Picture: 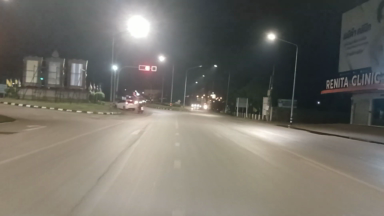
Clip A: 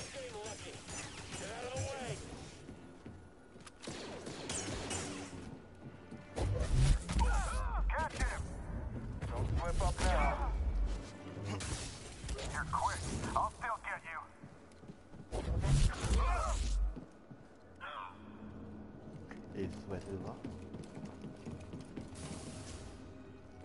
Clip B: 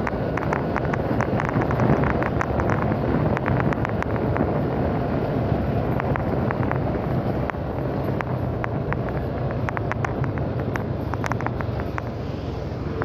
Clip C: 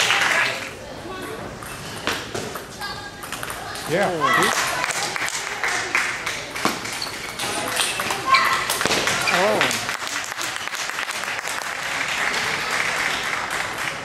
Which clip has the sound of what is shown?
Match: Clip B